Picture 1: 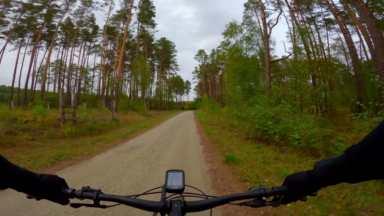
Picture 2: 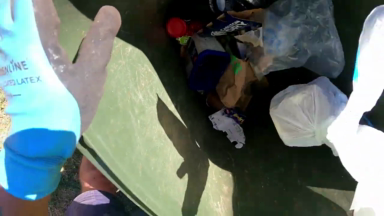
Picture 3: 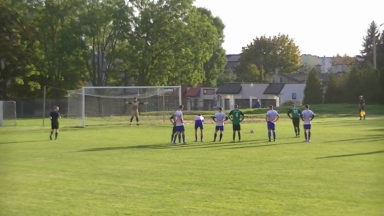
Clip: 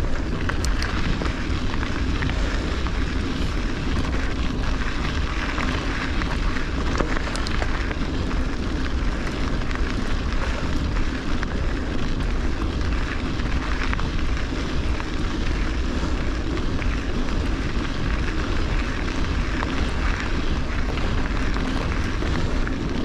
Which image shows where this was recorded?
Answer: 1